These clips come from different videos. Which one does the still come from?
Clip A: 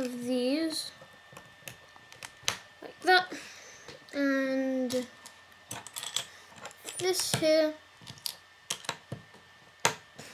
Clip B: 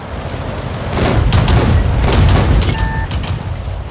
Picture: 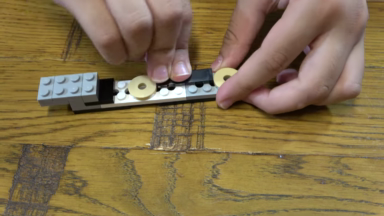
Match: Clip A